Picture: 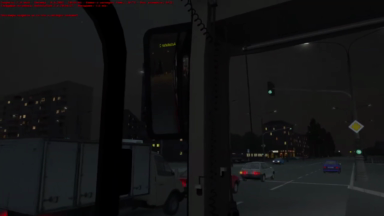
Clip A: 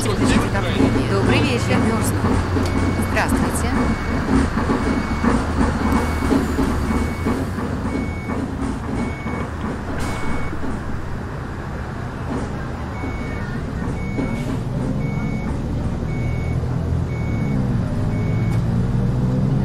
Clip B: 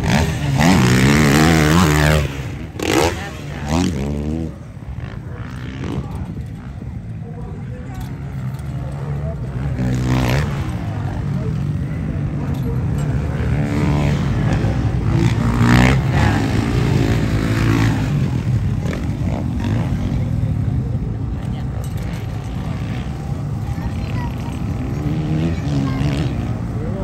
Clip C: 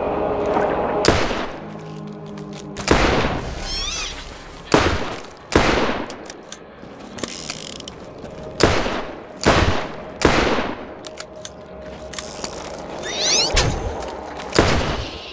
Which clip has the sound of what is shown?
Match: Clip A